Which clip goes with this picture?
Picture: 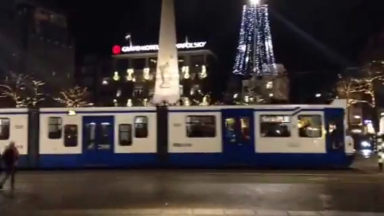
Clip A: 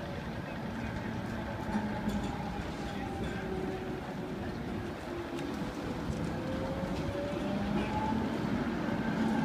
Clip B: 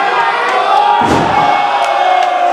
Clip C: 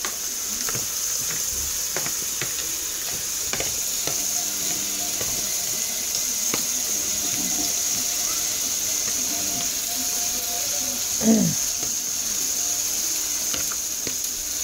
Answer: A